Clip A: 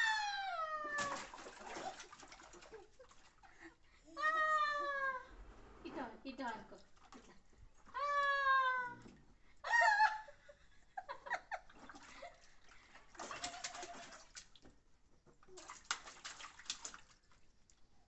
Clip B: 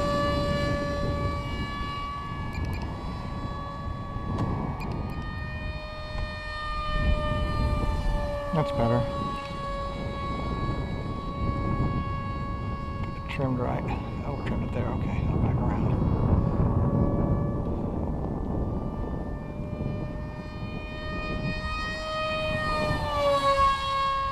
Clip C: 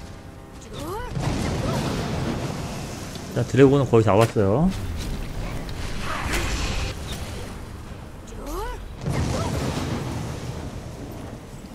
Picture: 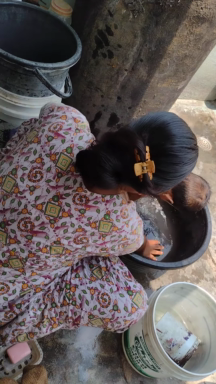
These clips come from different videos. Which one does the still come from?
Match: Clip A